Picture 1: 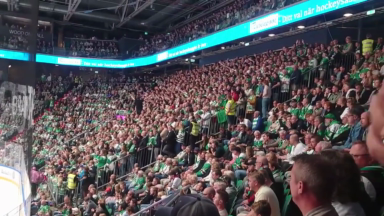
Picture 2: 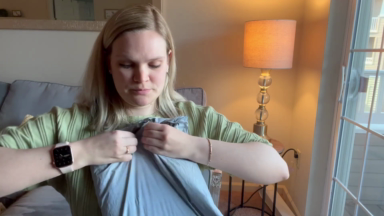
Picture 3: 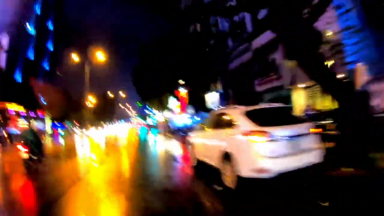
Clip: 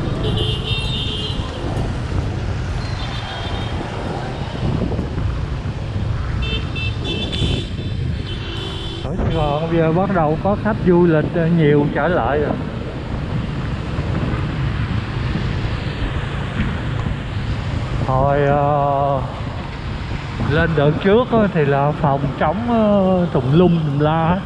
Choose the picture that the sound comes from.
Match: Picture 3